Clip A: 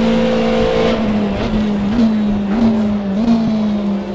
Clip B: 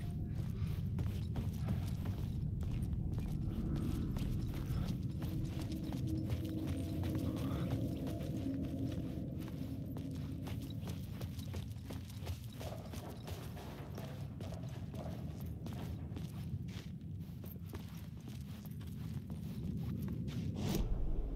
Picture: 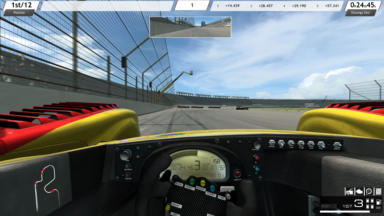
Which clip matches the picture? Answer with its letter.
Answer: A